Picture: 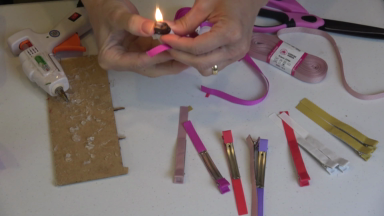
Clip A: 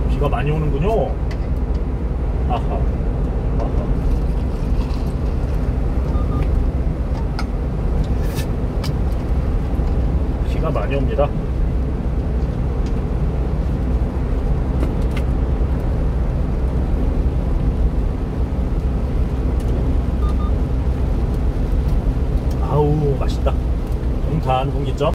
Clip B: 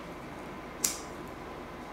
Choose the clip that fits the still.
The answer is B